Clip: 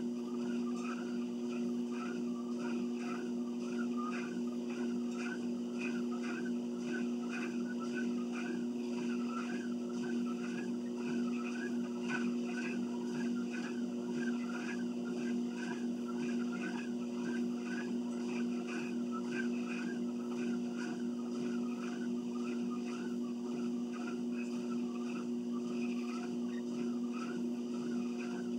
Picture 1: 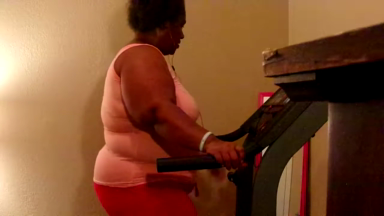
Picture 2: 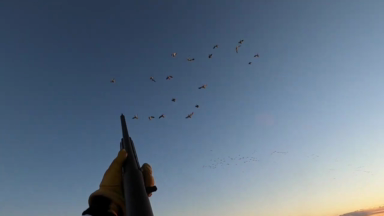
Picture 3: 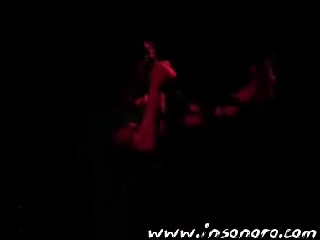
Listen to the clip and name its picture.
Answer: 1